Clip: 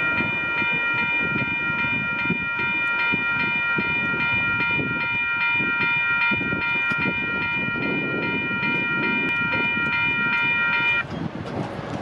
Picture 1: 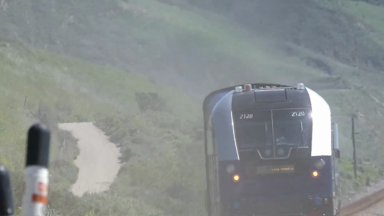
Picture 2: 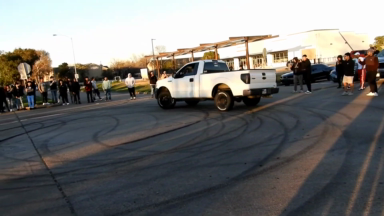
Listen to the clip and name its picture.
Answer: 1